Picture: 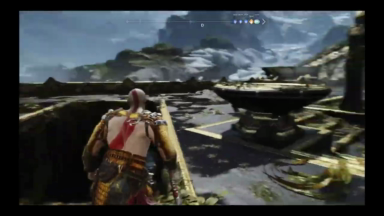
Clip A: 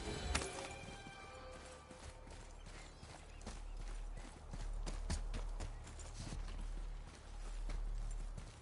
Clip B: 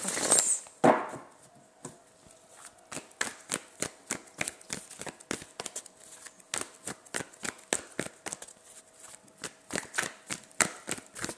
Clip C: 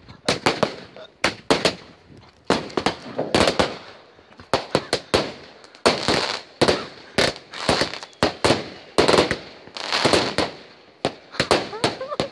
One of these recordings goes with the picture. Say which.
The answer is A